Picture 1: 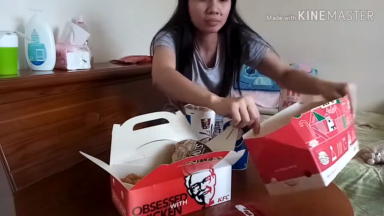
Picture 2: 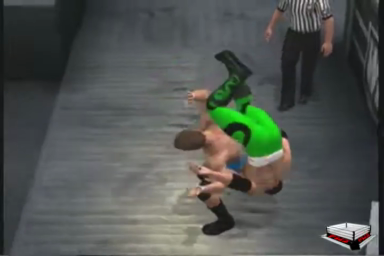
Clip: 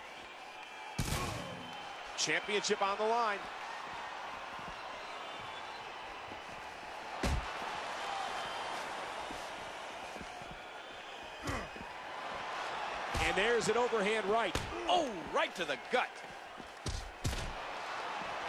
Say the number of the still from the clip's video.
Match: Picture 2